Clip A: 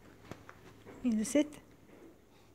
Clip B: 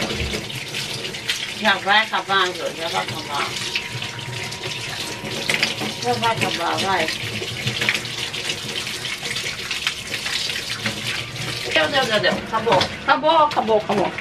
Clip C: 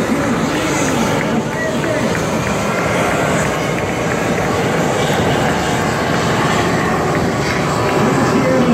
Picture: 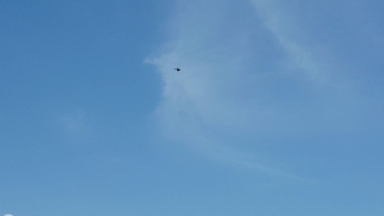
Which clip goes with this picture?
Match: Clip C